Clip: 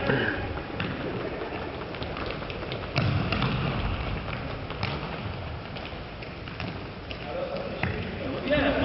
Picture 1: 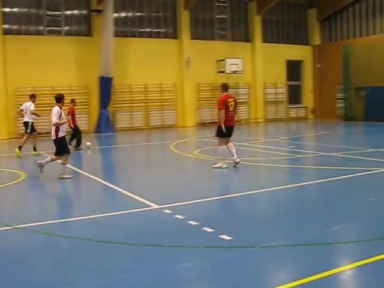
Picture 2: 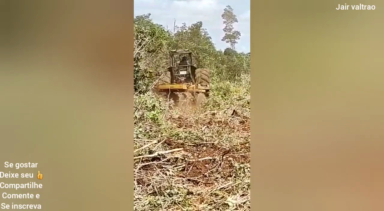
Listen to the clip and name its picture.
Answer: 1